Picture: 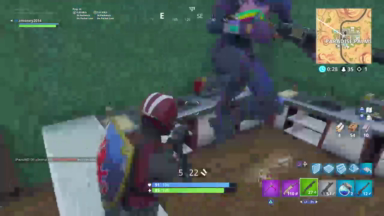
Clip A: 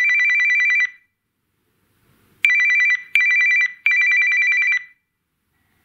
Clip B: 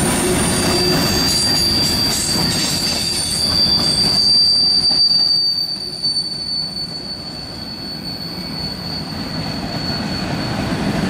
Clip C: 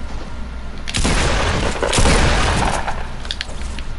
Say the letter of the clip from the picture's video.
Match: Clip C